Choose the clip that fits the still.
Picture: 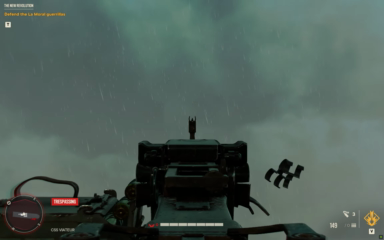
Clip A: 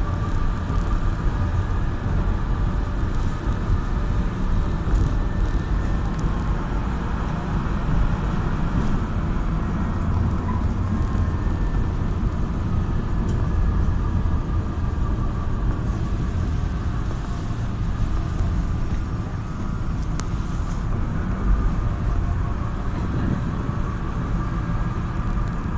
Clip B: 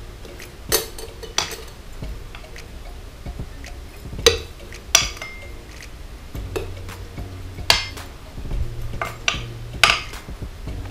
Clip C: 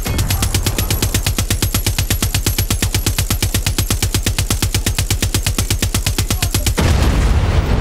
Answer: C